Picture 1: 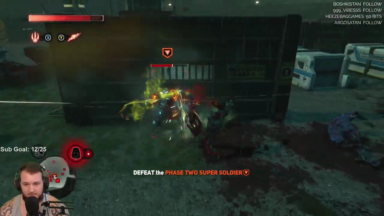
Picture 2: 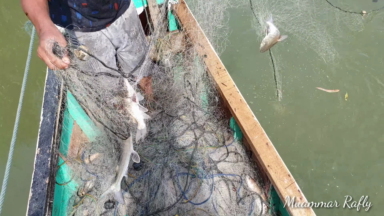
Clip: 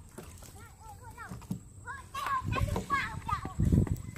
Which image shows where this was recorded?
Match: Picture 2